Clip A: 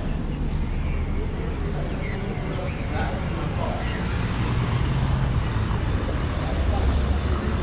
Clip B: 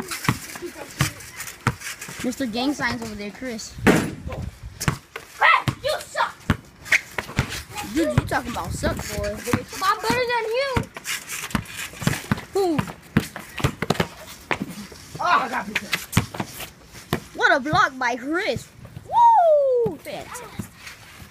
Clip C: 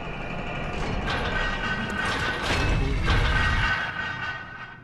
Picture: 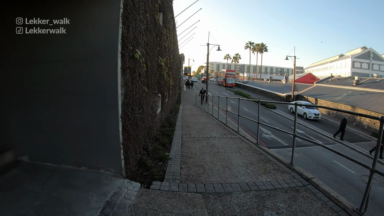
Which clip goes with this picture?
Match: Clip A